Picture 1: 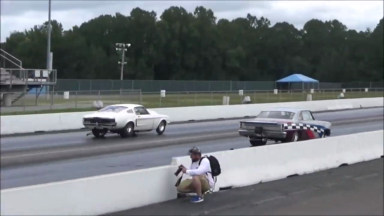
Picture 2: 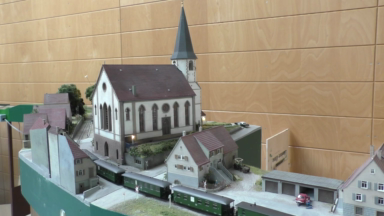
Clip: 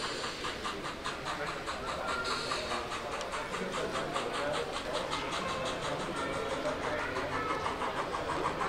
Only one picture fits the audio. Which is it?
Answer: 2